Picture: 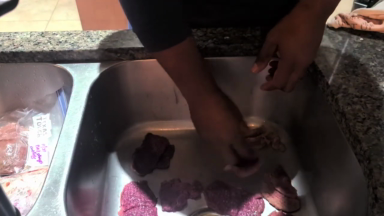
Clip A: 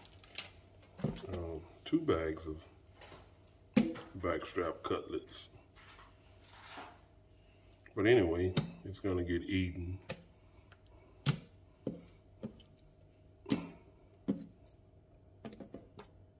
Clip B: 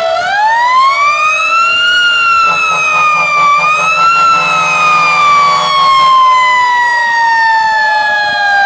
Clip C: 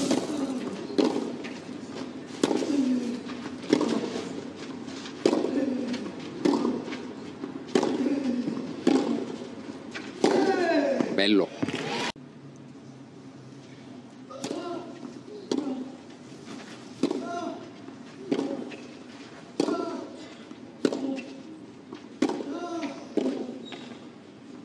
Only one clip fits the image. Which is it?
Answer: A